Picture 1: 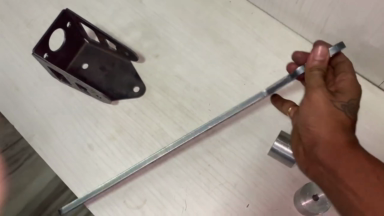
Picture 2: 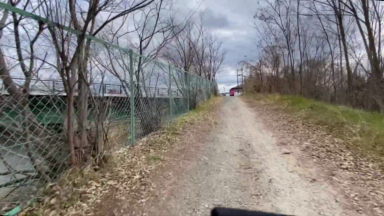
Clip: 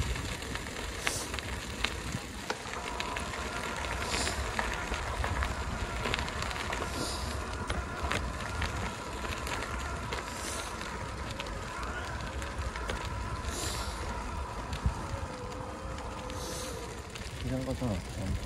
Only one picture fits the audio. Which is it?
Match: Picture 2